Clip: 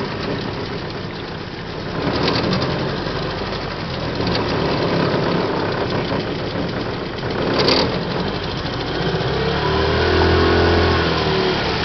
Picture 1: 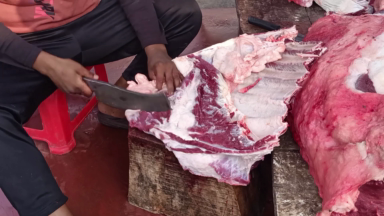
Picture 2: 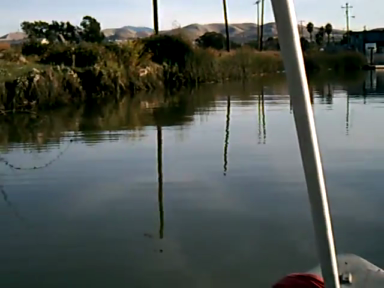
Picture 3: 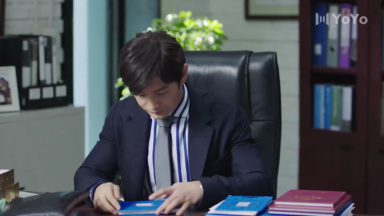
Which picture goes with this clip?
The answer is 2